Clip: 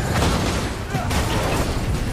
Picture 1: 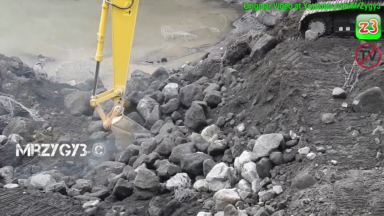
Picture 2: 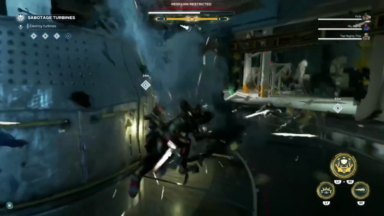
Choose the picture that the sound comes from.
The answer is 2